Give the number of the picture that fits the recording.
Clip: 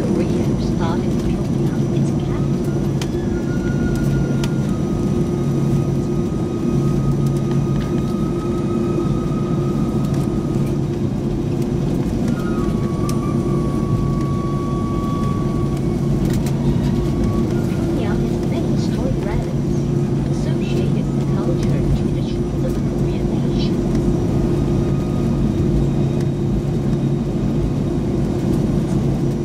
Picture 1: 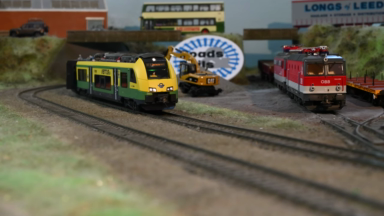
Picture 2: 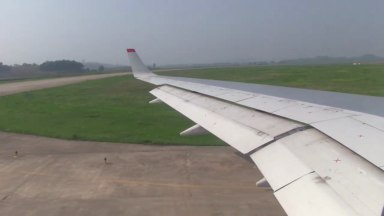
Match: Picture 2